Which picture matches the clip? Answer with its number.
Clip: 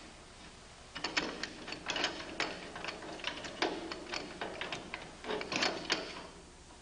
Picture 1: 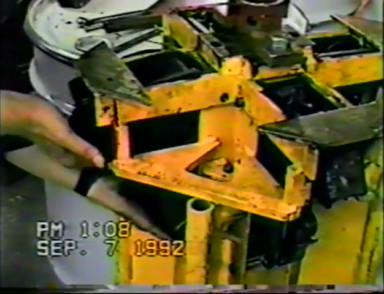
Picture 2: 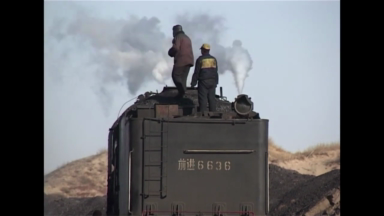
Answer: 1